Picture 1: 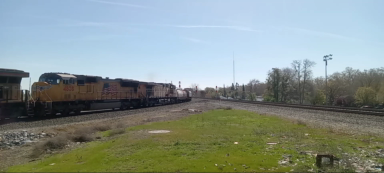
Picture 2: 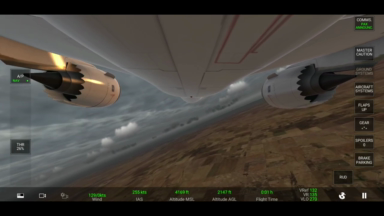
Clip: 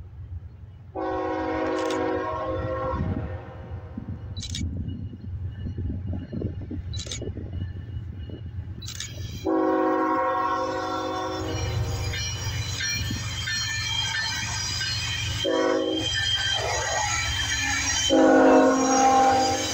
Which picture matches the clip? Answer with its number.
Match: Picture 1